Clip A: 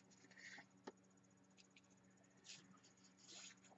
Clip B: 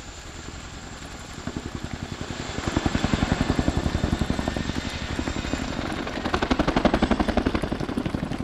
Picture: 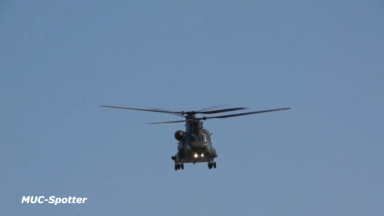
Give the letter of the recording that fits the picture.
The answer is B